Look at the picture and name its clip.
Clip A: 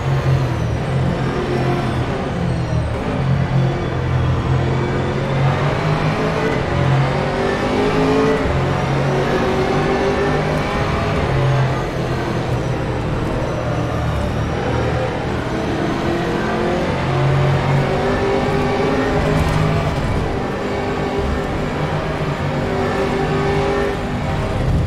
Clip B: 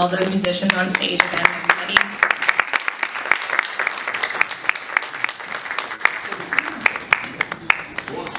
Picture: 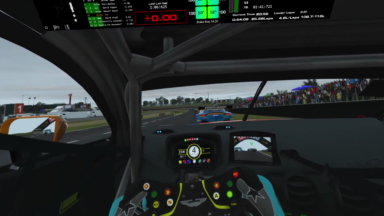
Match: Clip A